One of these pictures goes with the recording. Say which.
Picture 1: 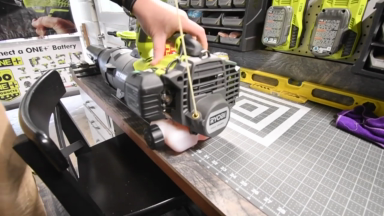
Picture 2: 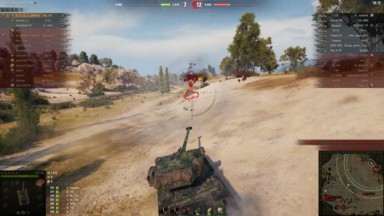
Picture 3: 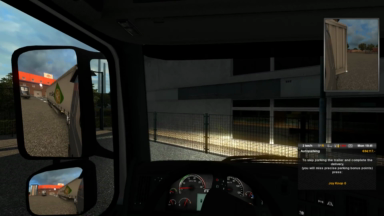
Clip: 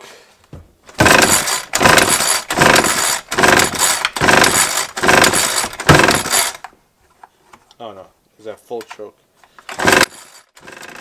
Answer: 1